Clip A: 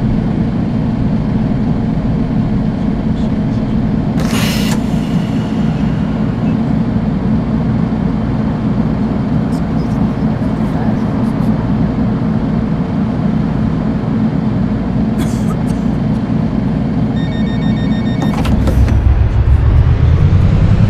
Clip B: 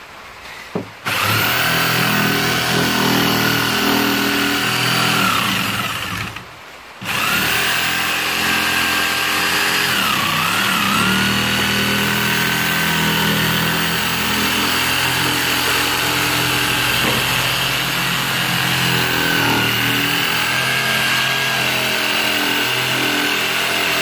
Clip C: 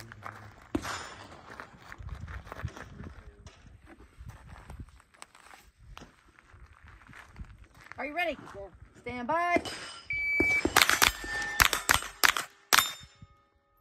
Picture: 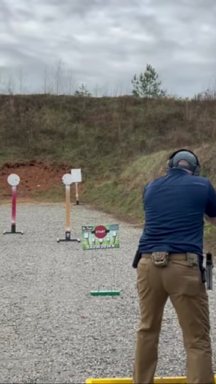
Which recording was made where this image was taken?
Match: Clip C